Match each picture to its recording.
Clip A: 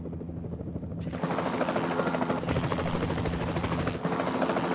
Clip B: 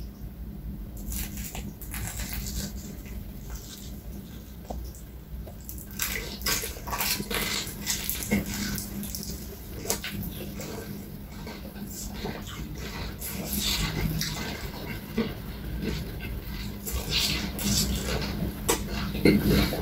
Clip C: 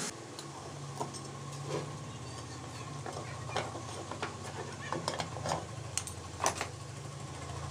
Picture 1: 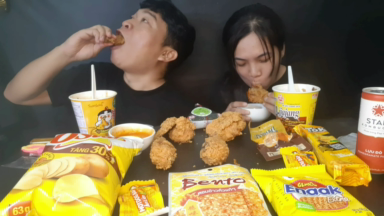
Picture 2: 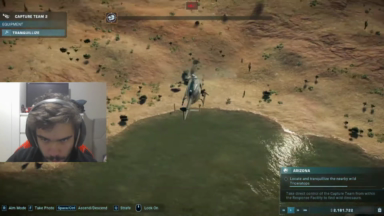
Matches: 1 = B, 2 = A